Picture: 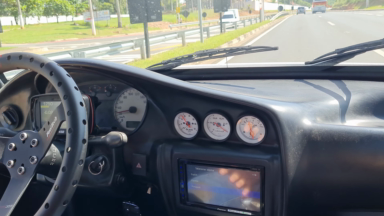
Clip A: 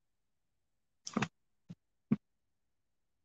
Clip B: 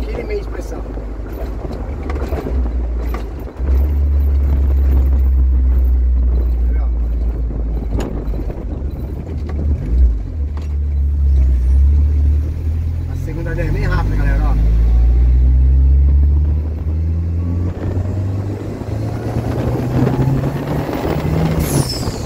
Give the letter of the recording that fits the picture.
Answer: B